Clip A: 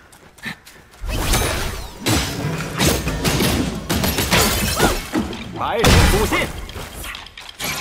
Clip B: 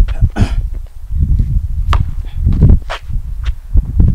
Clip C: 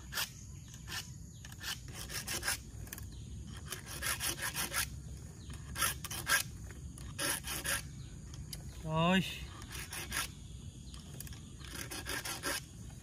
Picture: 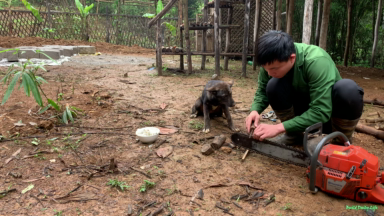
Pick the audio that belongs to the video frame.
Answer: C